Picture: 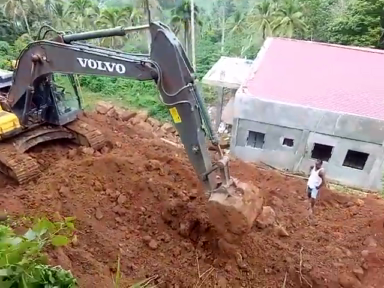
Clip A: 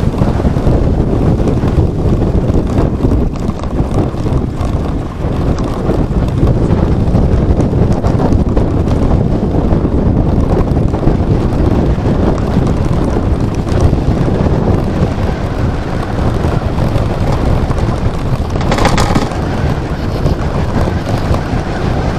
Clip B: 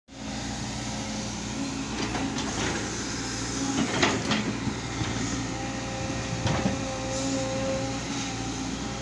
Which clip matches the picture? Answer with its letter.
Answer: B